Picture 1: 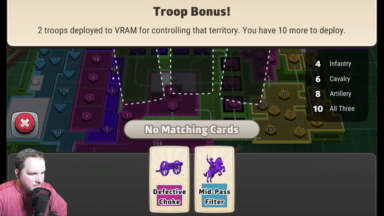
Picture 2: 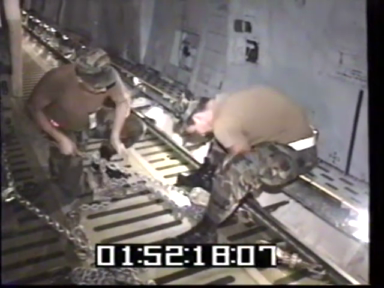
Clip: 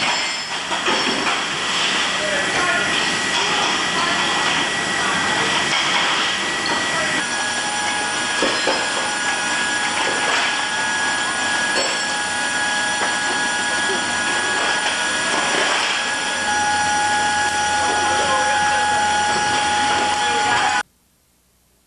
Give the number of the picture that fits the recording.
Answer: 2